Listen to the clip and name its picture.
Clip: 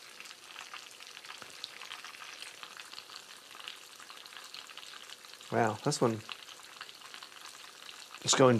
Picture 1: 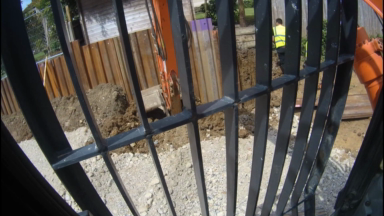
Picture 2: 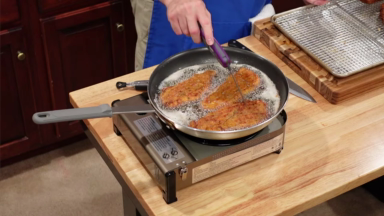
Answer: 2